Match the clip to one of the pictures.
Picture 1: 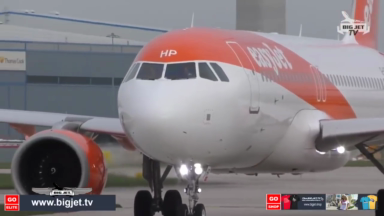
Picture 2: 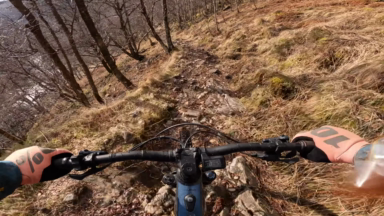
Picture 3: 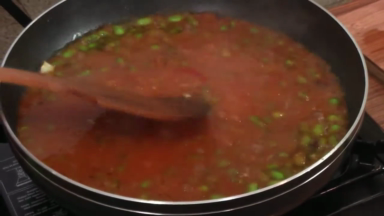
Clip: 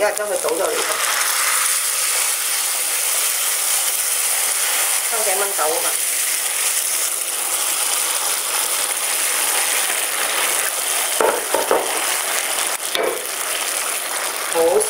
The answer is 3